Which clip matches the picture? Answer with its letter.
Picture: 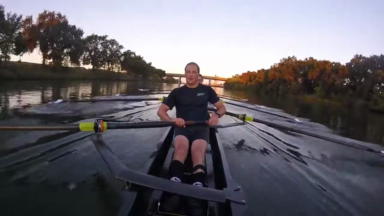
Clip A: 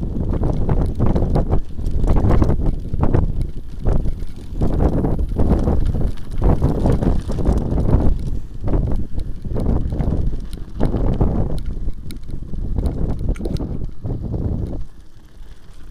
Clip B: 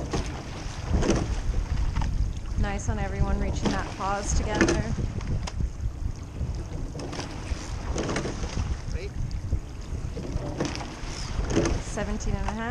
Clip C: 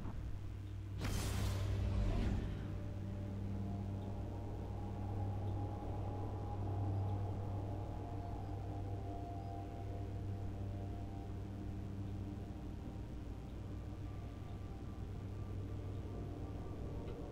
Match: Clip B